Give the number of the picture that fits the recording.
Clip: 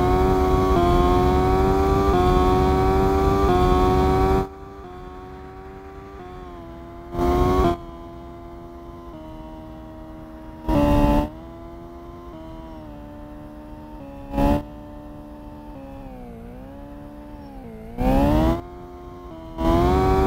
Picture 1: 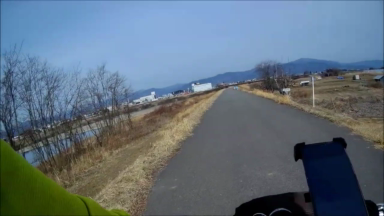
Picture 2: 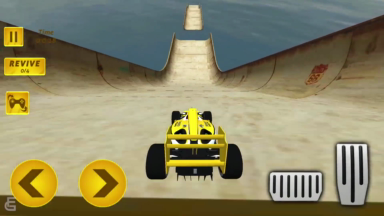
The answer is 2